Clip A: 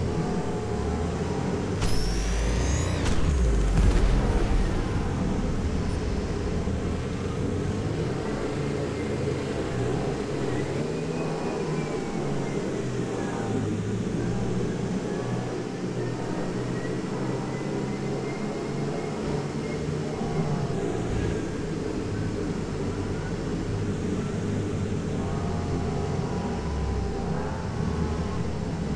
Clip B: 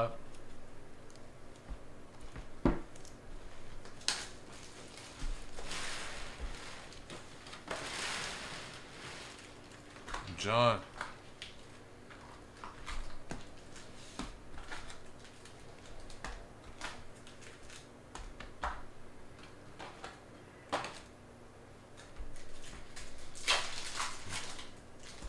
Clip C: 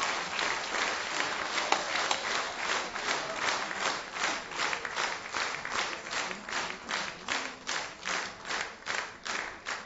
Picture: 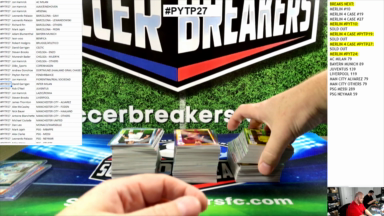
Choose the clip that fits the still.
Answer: B